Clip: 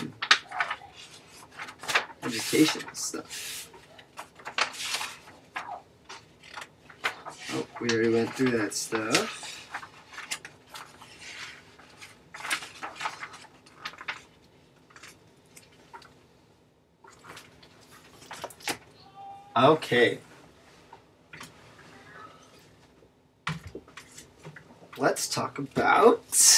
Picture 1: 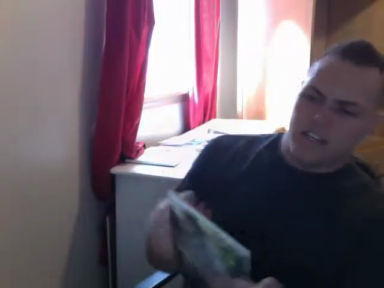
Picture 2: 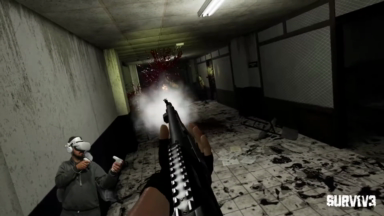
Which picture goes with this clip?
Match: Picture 1